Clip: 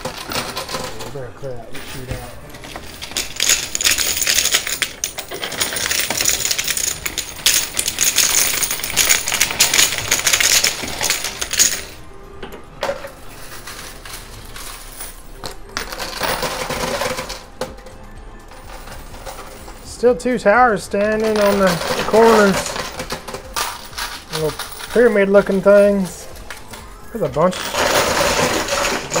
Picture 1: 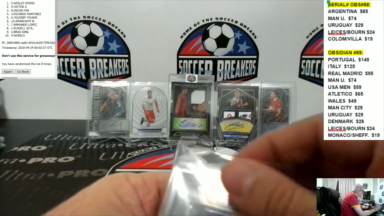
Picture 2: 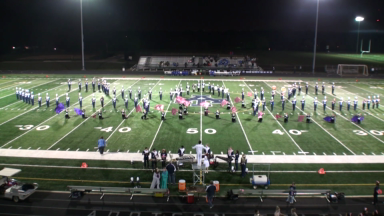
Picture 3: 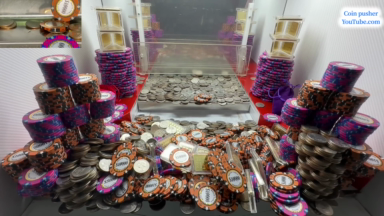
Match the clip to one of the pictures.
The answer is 3